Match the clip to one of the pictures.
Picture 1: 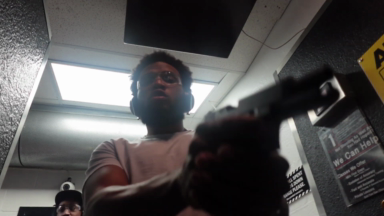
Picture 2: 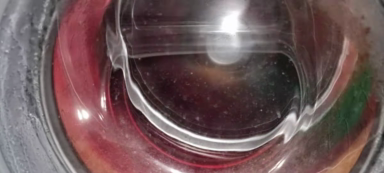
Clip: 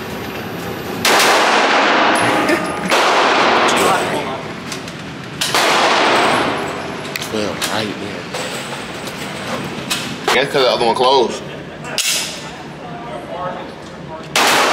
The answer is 1